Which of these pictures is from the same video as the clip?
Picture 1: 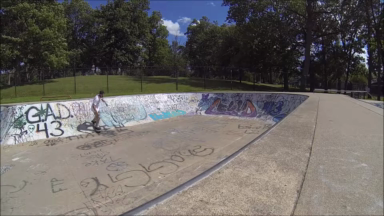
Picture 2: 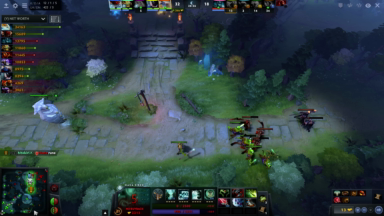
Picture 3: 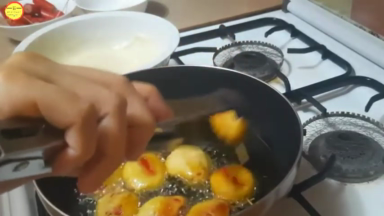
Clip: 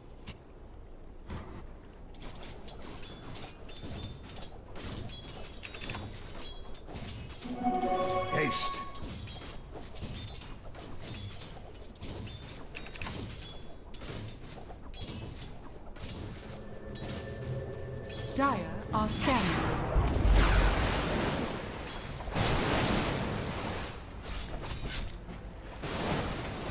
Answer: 2